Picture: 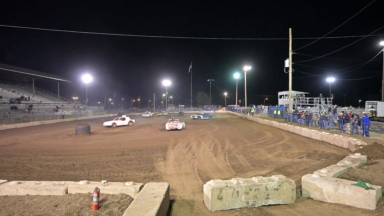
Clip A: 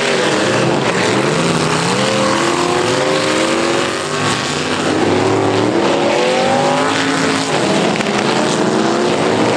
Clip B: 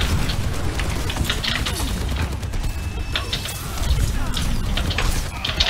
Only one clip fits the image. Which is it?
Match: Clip A